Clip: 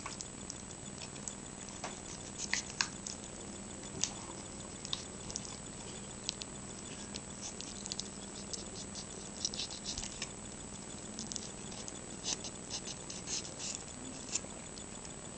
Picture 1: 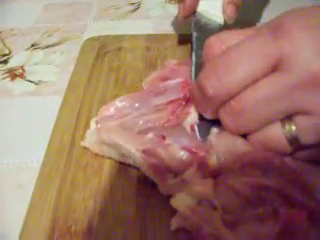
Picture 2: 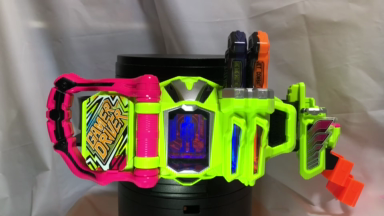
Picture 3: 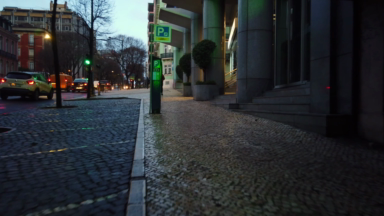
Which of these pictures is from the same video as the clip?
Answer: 1